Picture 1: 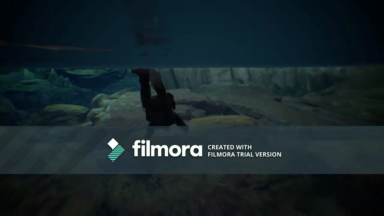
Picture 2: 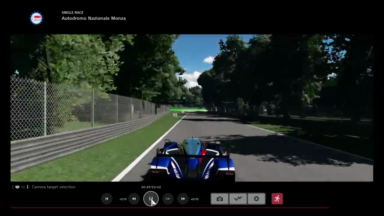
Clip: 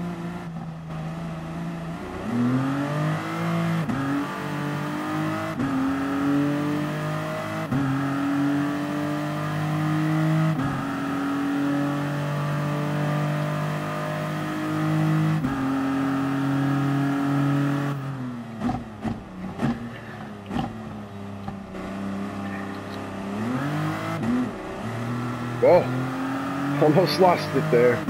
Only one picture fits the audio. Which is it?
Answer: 2